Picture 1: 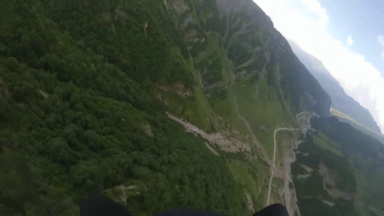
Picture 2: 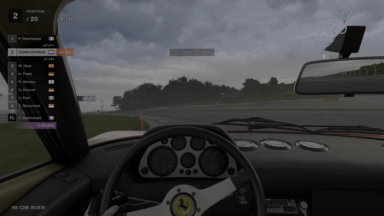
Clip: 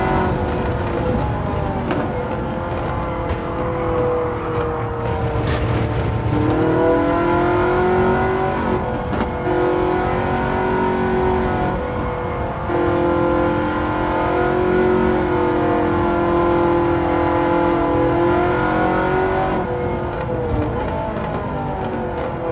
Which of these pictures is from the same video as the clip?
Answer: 2